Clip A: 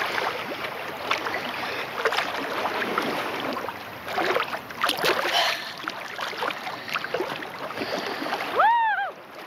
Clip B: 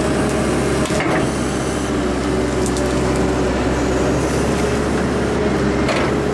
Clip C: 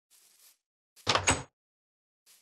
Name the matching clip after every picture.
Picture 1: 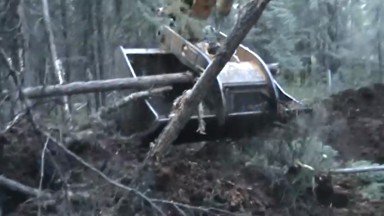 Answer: B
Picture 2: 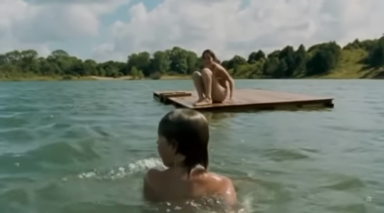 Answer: A